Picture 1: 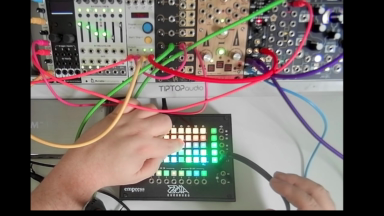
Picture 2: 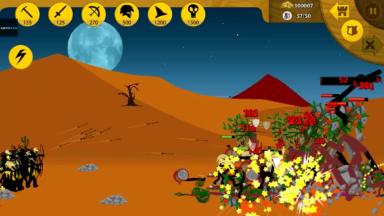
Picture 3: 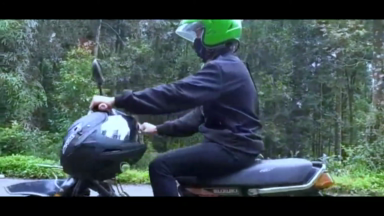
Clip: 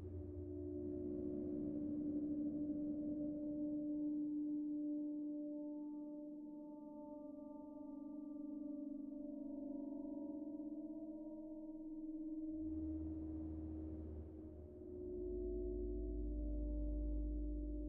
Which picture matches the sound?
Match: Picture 1